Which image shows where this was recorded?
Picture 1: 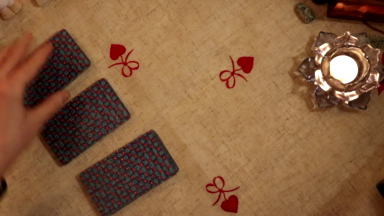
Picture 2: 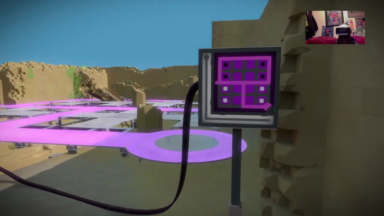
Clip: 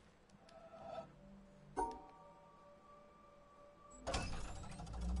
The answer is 2